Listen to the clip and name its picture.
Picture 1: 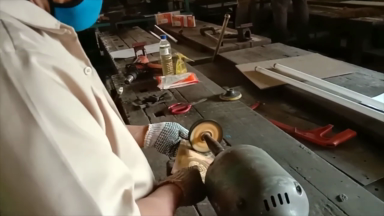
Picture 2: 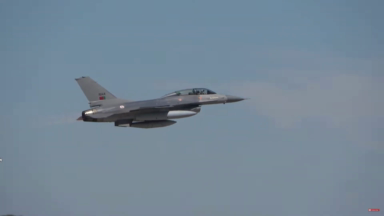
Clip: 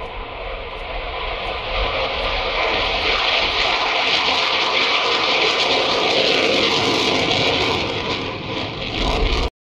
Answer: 2